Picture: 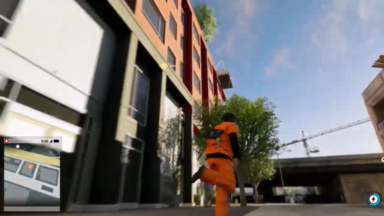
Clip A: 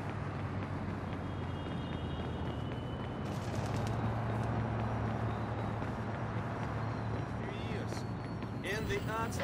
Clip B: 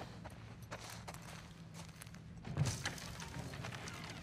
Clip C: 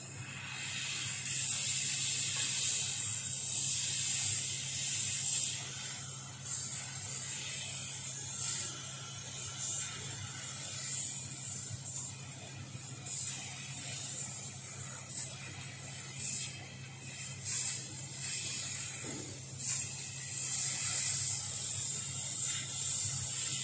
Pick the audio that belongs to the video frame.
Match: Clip A